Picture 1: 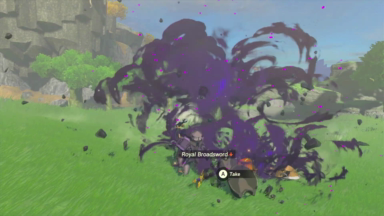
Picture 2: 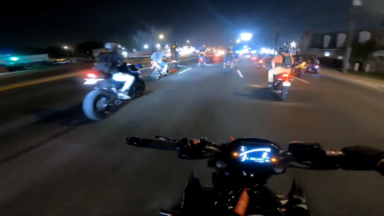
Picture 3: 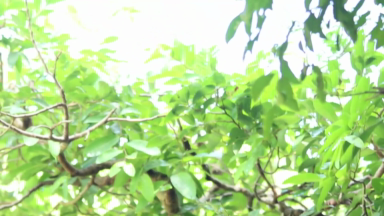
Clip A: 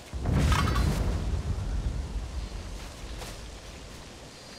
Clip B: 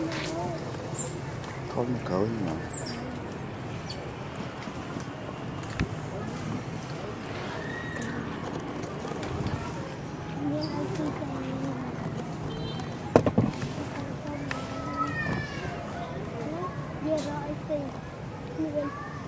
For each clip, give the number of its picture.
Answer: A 1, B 3